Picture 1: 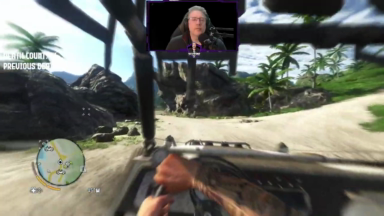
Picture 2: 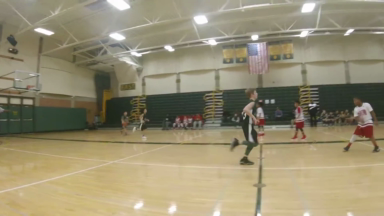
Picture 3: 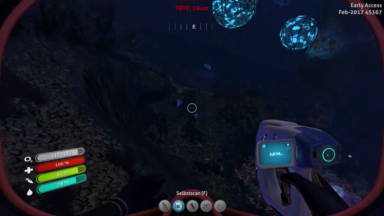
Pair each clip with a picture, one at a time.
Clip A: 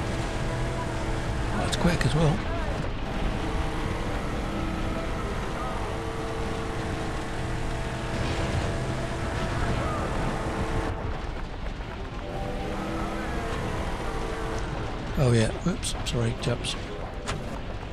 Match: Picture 1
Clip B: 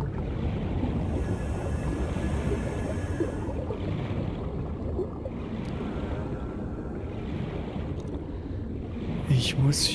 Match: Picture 3